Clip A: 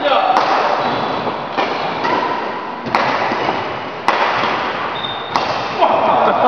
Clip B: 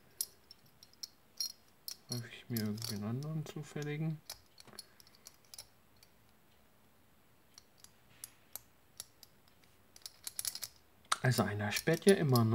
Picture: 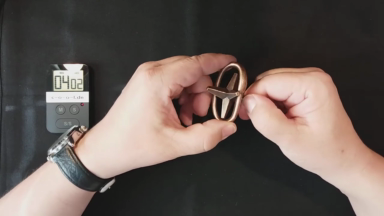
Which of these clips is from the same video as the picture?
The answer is B